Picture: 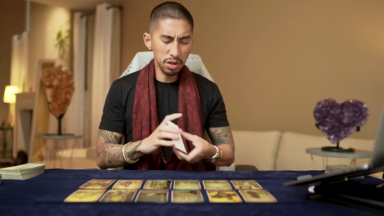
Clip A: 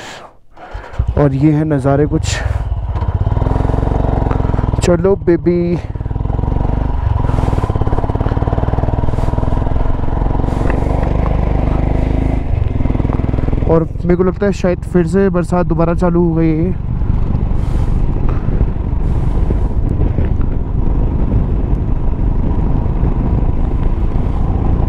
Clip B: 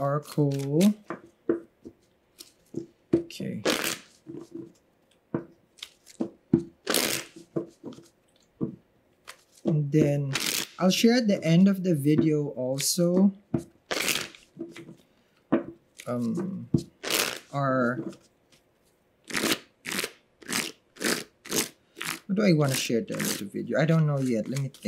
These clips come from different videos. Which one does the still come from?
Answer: B